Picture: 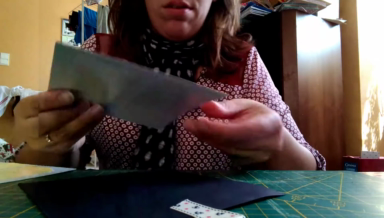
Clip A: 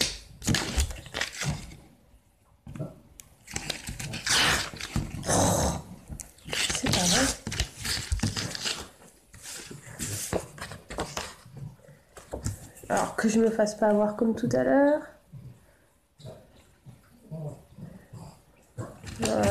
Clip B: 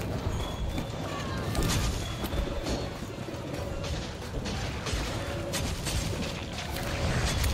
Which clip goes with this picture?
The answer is A